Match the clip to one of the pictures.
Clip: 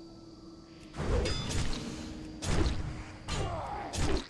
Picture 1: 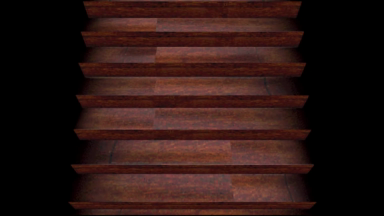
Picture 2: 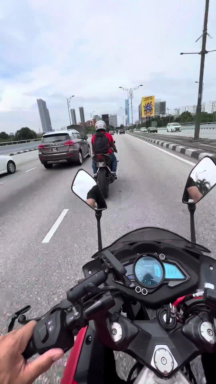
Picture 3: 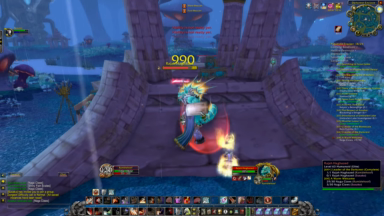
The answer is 3